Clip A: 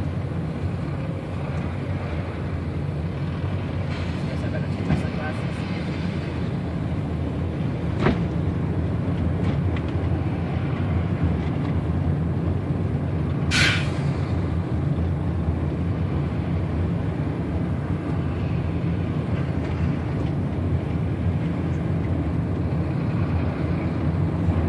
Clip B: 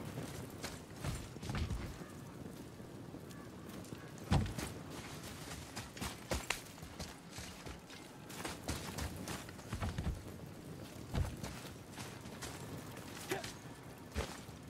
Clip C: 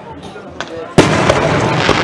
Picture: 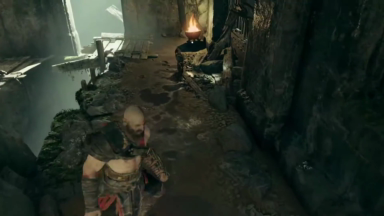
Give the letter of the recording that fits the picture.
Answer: B